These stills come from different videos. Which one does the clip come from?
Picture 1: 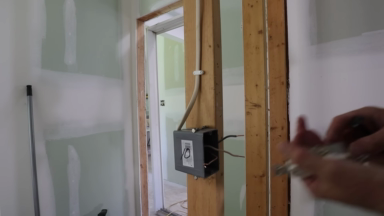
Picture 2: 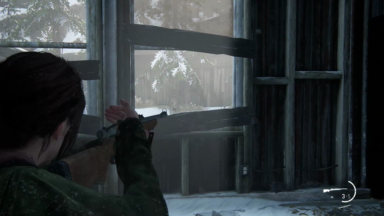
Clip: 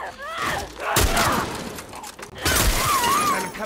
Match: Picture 2